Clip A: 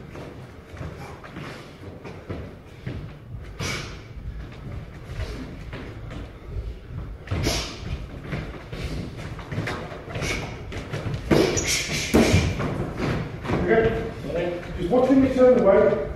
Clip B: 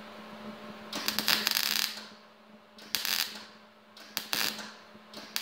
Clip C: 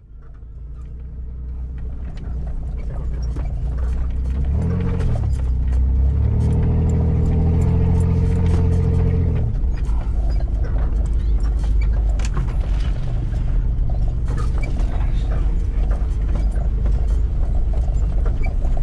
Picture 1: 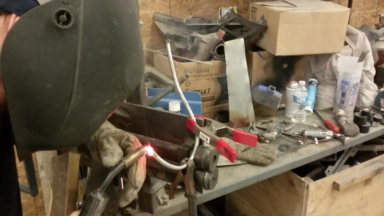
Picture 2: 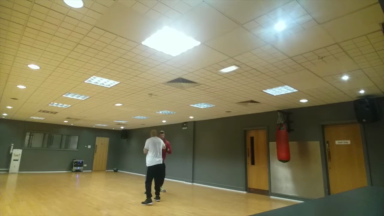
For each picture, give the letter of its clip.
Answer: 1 B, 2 A